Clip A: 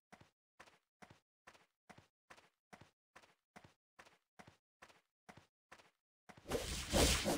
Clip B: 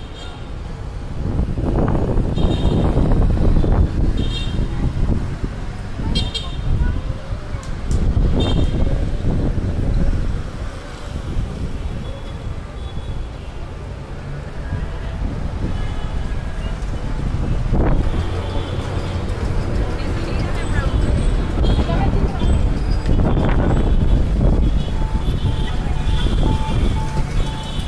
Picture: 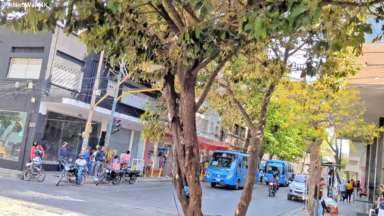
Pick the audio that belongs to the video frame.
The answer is B